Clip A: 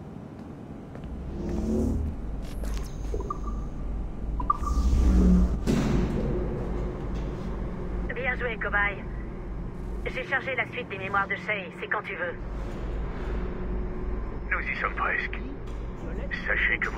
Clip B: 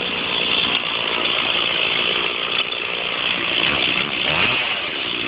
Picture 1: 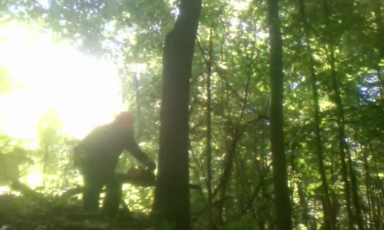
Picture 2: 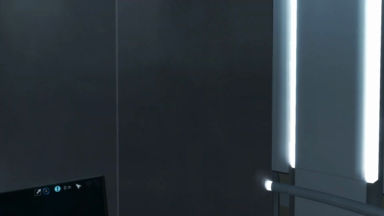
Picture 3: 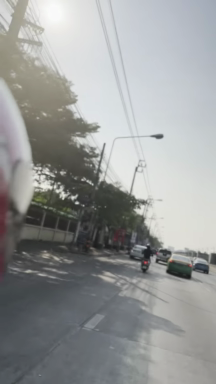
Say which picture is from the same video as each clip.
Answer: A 2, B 1